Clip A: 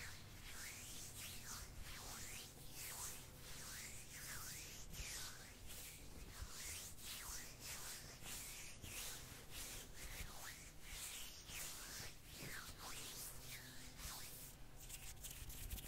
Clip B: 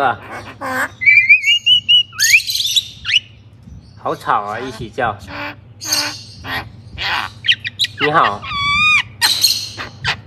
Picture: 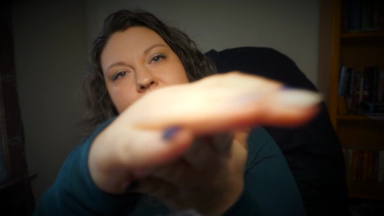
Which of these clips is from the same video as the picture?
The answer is A